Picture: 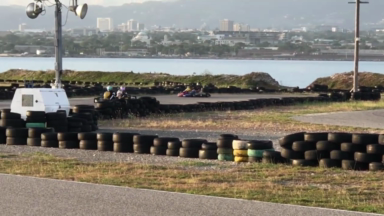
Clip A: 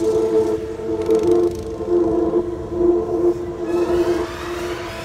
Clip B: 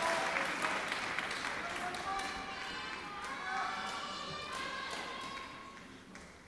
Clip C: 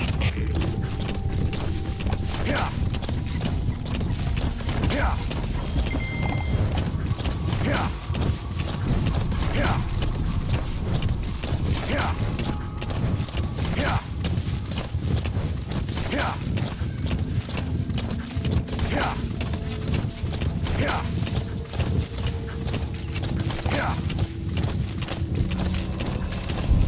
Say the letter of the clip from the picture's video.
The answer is A